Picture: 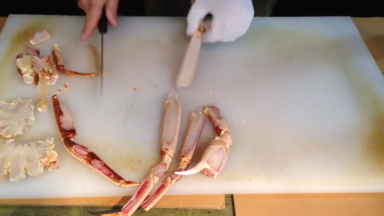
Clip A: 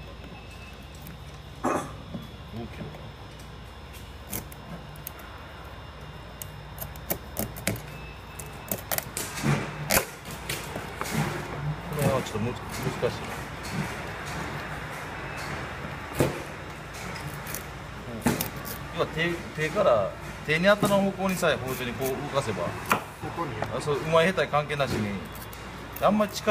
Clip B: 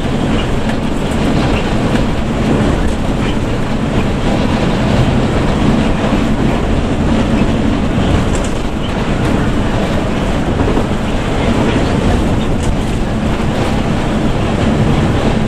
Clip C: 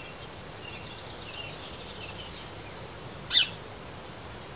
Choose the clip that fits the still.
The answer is A